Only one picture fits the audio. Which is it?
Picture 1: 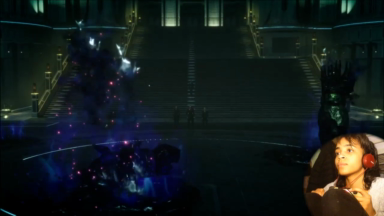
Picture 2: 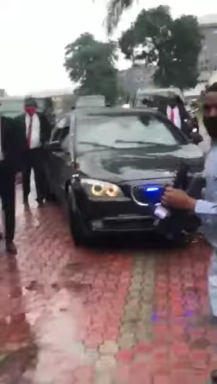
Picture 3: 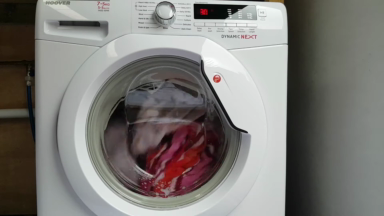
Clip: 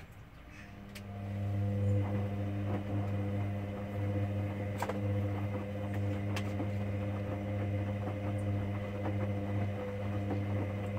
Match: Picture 3